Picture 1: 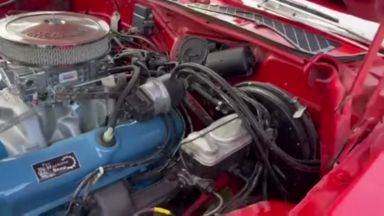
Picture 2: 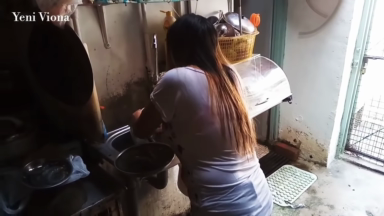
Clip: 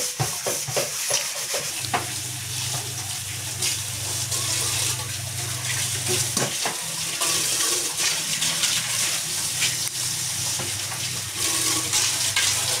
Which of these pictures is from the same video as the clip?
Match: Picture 2